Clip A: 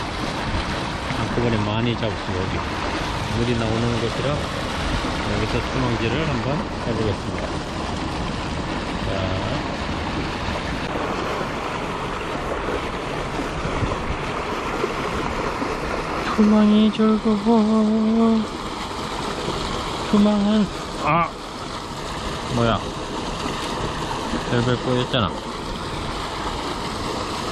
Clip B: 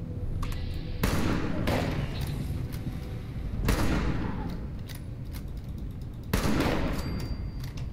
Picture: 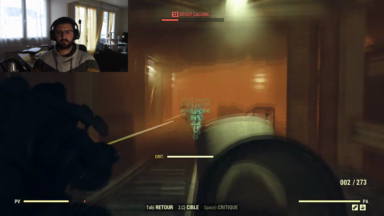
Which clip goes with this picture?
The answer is B